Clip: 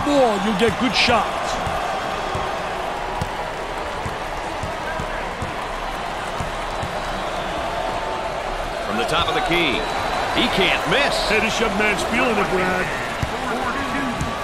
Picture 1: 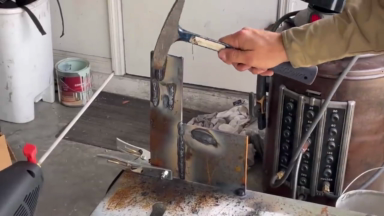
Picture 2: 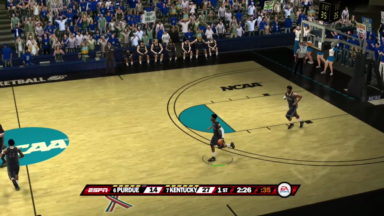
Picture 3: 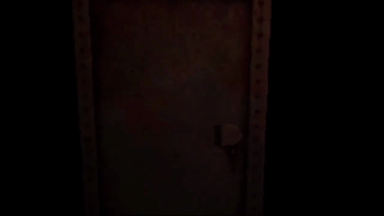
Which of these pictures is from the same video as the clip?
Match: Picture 2